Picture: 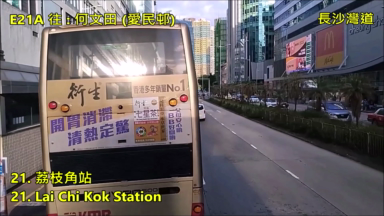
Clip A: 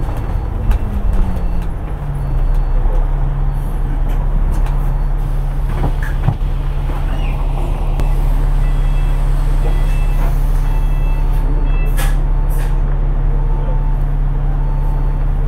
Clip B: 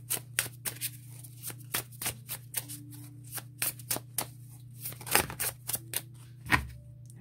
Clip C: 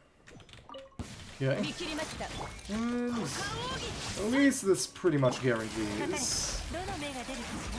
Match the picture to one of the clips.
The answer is A